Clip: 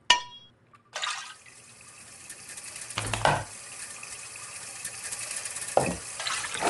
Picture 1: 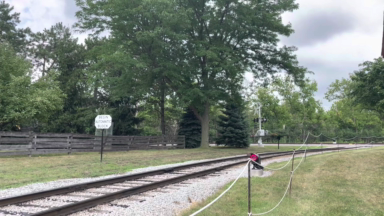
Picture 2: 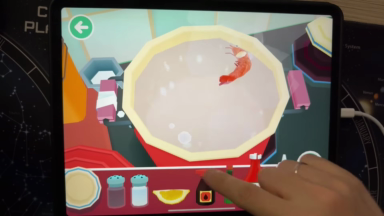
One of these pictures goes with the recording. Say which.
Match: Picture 2